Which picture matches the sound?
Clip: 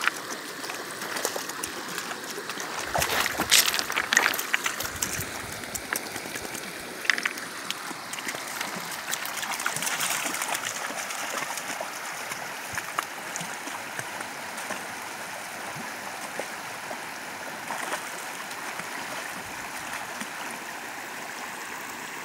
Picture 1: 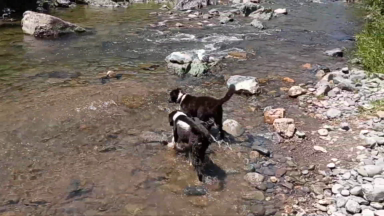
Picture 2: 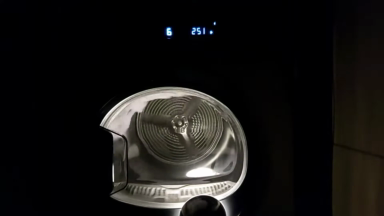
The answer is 1